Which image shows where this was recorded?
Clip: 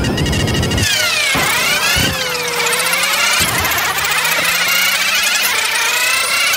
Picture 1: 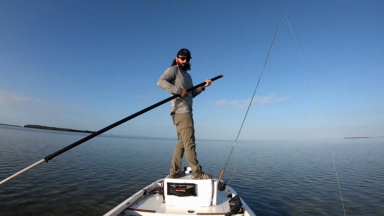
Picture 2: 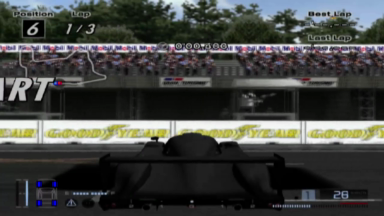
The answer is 2